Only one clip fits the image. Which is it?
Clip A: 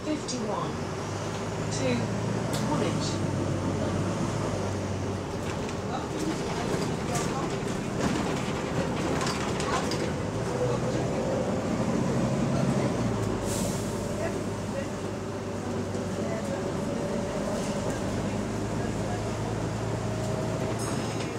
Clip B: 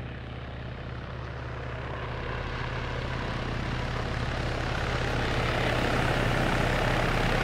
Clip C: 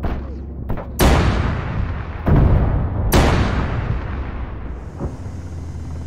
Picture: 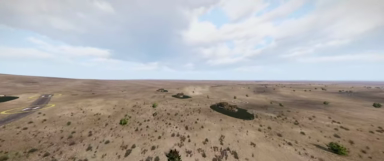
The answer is B